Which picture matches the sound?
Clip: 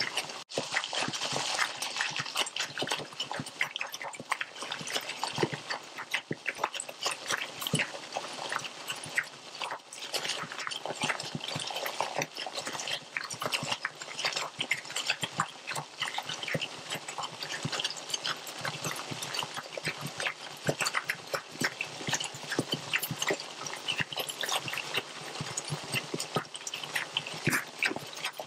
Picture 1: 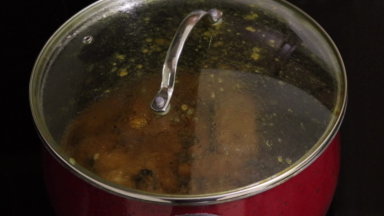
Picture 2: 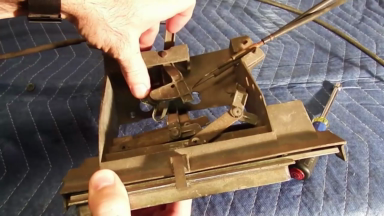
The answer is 1